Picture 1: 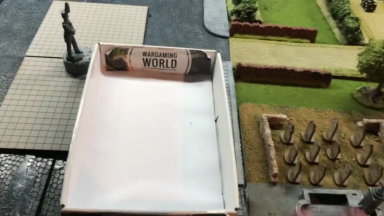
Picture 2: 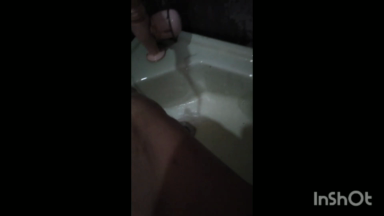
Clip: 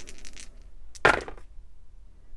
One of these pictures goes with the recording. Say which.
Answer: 1